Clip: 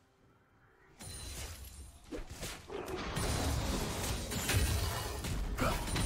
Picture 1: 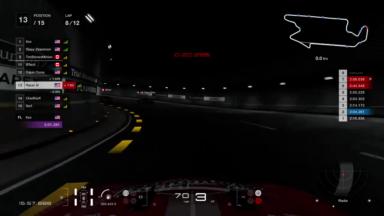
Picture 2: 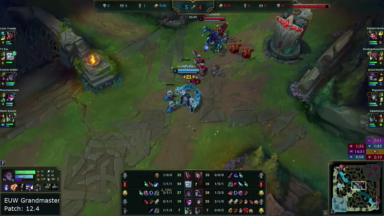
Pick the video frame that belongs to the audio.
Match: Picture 2